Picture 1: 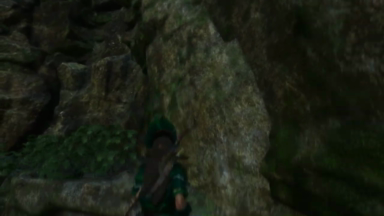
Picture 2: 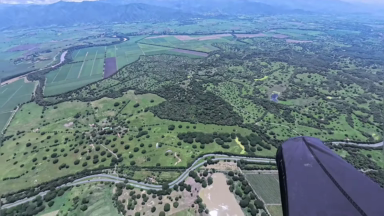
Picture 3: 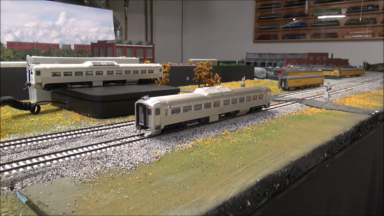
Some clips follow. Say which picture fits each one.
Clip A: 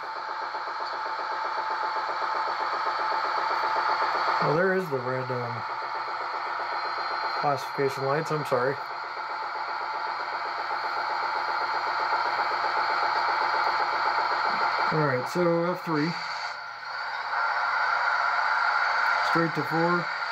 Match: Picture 3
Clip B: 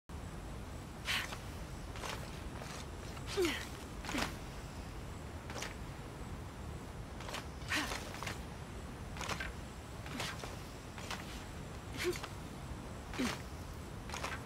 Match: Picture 1